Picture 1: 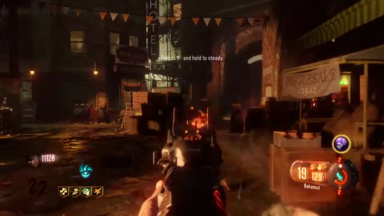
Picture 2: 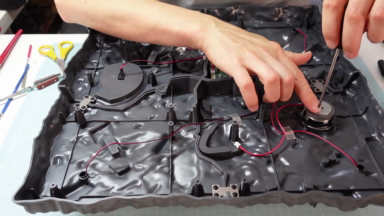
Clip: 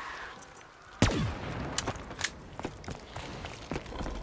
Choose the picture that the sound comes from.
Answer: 1